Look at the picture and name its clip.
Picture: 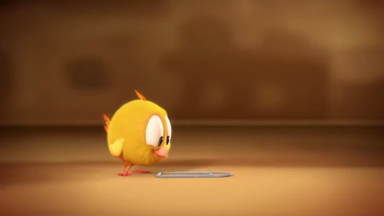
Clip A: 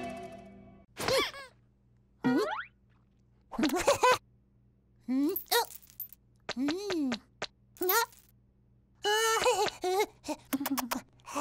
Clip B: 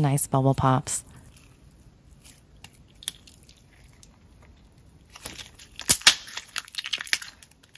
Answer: A